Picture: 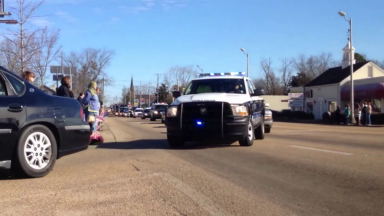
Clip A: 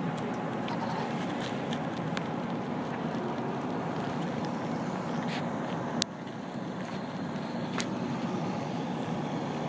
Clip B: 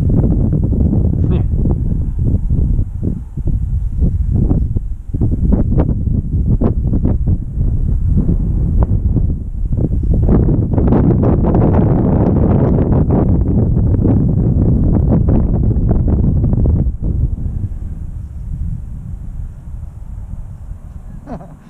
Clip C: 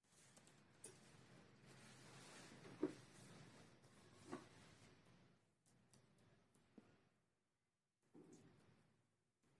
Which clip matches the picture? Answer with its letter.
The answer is A